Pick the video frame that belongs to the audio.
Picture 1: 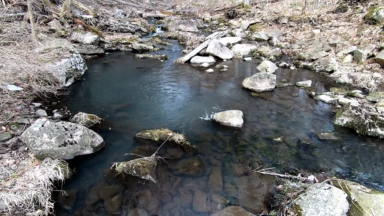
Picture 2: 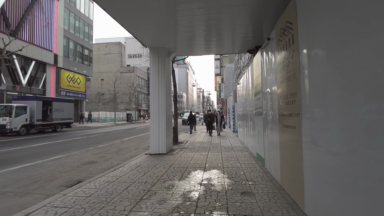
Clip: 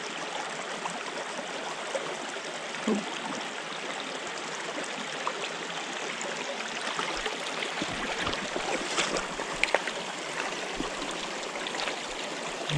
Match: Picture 1